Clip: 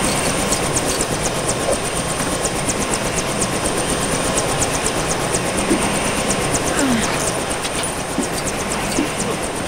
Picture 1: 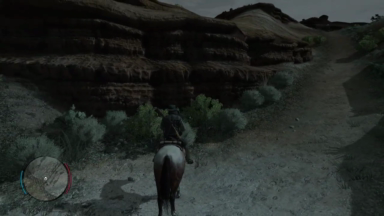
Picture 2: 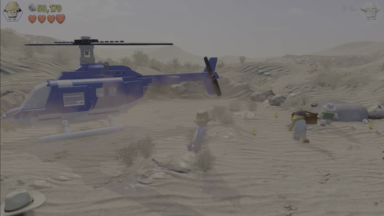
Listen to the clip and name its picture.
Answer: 2